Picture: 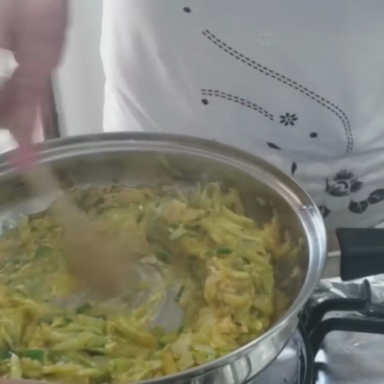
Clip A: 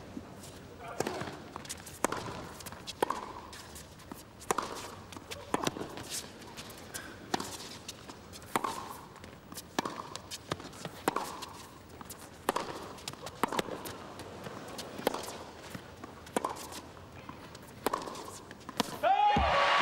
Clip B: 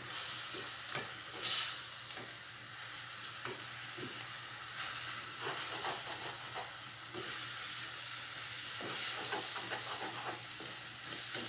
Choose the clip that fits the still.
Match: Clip B